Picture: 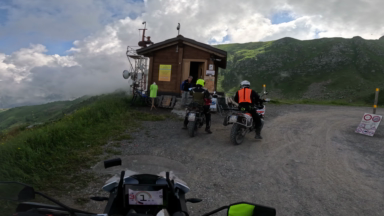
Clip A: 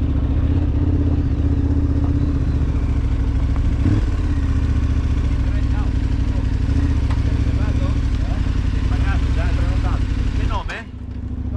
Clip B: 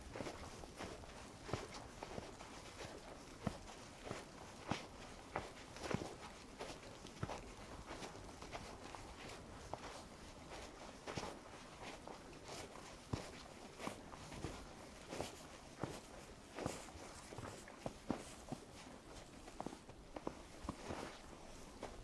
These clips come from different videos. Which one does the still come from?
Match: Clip A